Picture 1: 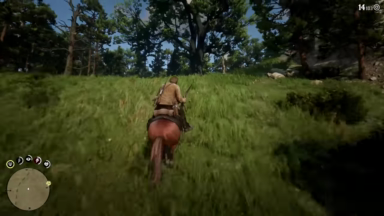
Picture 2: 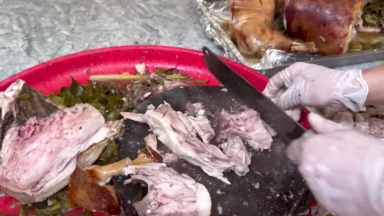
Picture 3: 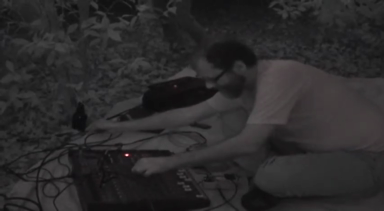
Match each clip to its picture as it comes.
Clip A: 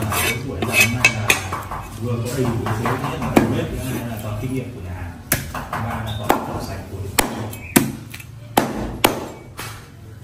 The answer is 2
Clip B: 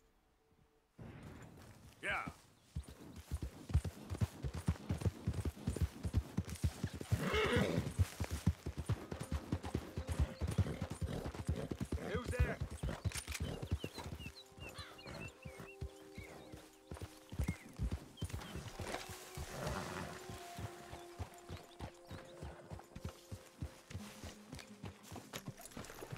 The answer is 1